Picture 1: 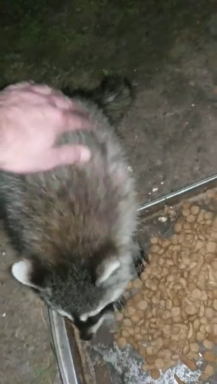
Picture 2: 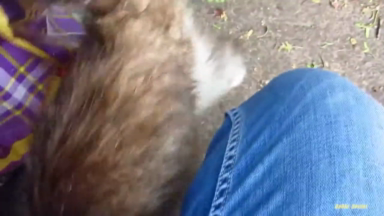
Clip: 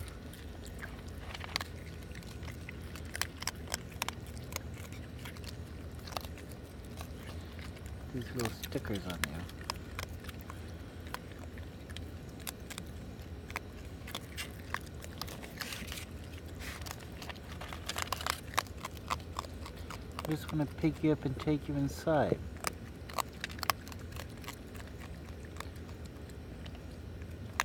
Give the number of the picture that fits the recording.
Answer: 1